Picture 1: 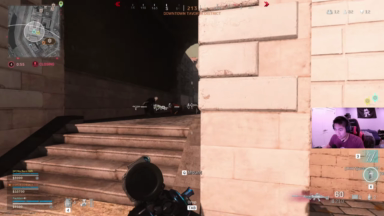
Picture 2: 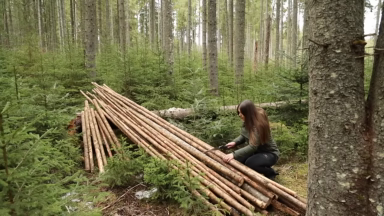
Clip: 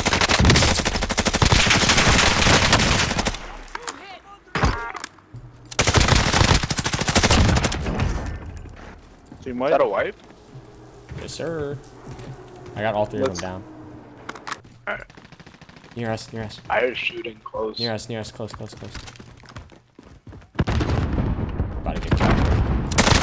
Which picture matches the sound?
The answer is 1